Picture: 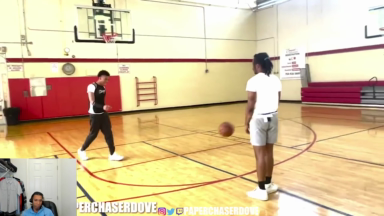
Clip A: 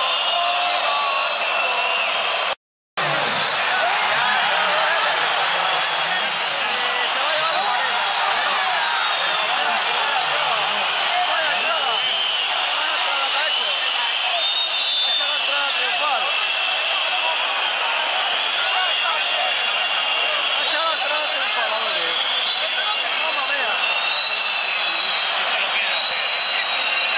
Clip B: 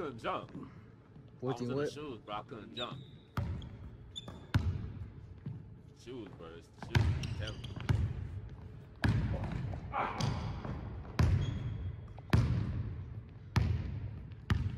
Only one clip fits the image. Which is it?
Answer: B